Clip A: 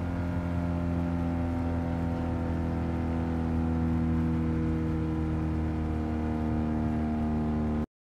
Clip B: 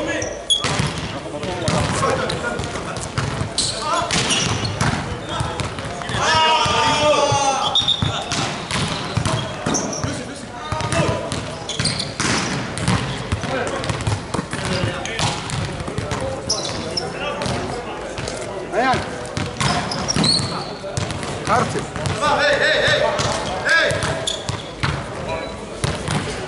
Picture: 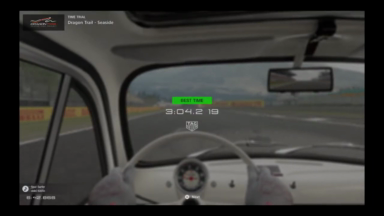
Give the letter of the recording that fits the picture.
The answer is A